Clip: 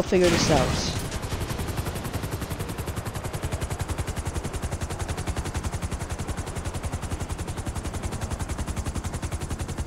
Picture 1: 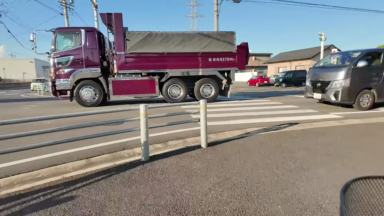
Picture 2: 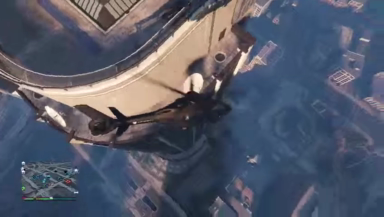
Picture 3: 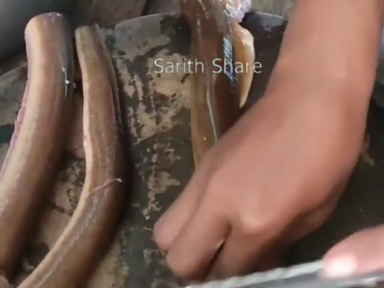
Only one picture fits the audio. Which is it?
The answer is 2